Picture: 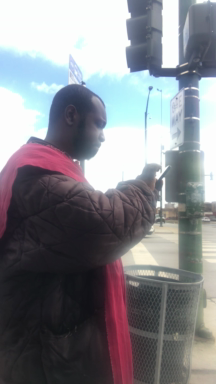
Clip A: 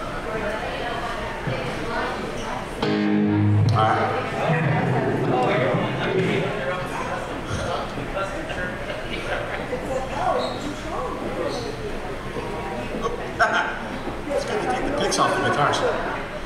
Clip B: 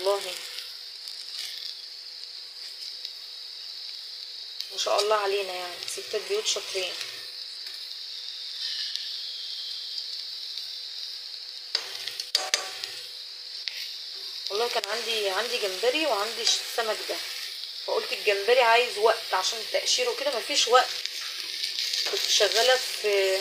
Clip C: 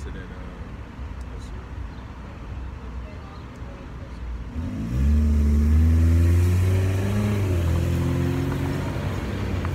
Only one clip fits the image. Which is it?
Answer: C